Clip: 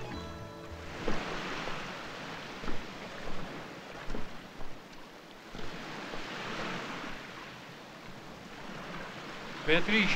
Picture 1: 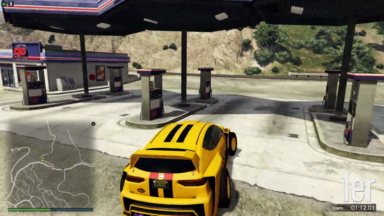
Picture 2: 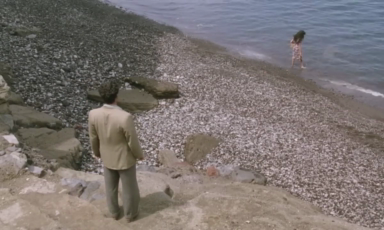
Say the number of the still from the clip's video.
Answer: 2